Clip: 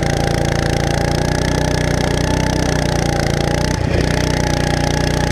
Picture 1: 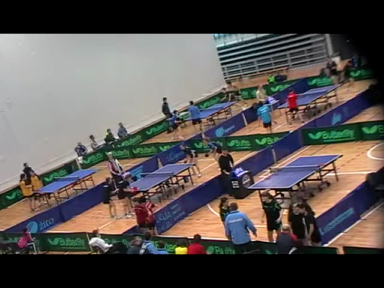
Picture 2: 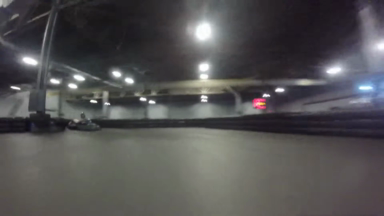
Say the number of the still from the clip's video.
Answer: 2